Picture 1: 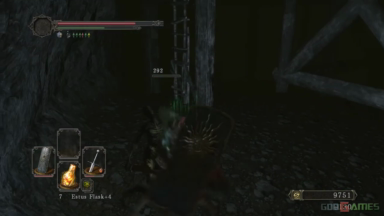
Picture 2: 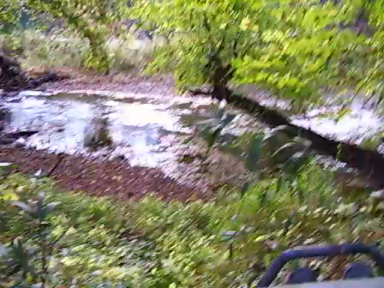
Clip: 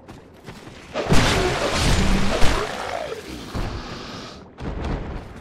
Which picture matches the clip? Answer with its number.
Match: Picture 1